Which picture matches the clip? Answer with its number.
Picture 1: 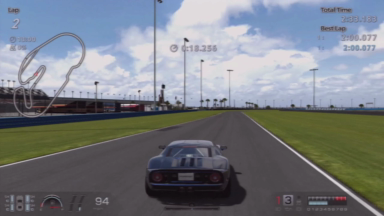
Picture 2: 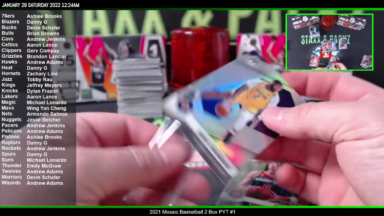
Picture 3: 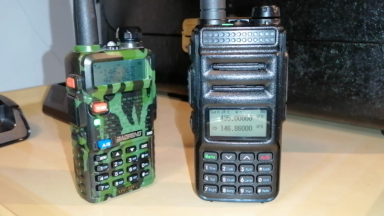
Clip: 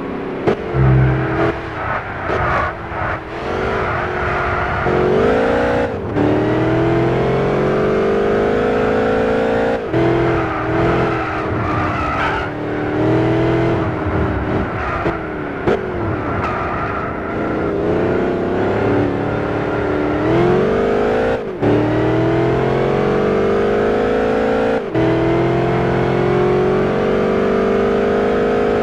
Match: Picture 1